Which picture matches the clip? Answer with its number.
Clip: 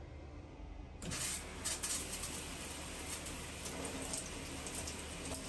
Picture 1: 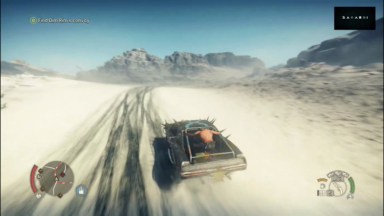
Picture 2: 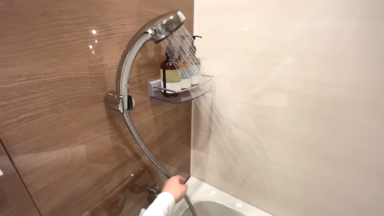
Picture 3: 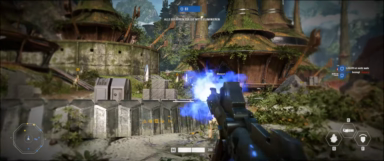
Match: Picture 2